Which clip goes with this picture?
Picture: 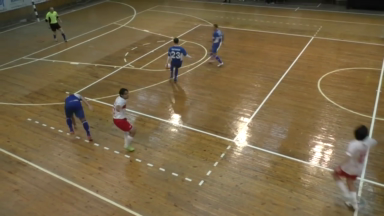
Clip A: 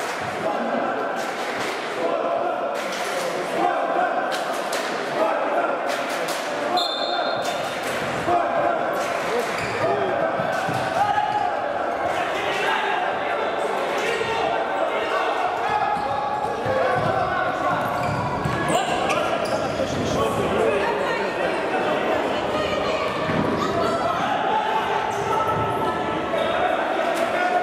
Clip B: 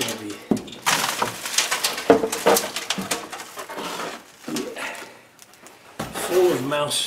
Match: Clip A